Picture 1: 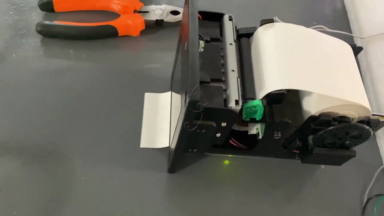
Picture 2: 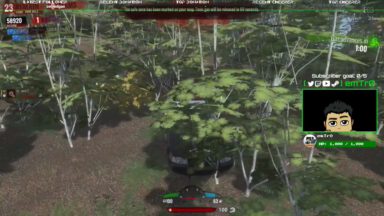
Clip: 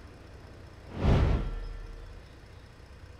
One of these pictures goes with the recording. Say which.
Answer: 2